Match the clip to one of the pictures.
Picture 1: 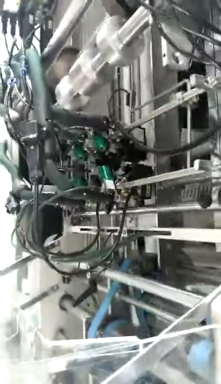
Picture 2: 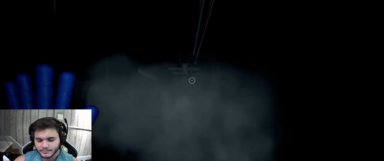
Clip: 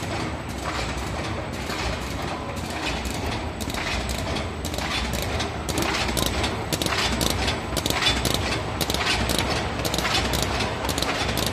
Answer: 1